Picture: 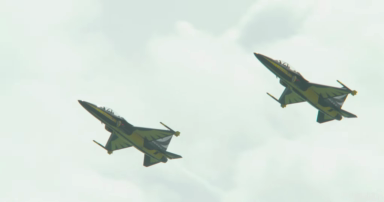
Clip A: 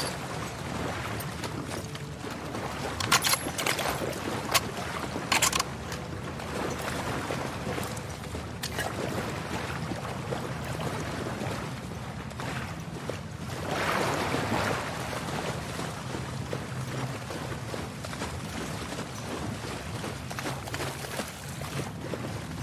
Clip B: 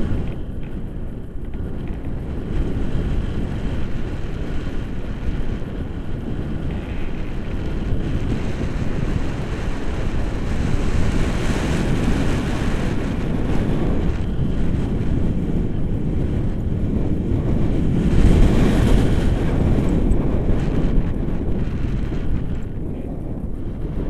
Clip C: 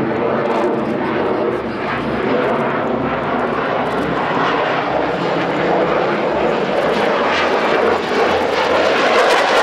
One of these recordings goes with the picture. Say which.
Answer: C